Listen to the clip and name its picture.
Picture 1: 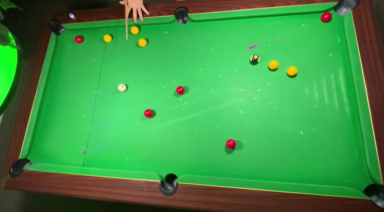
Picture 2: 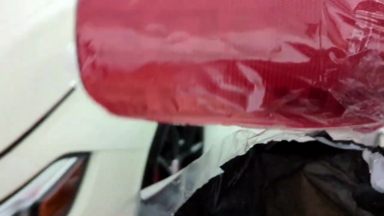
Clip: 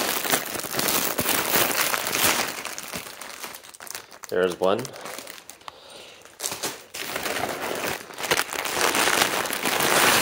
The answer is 2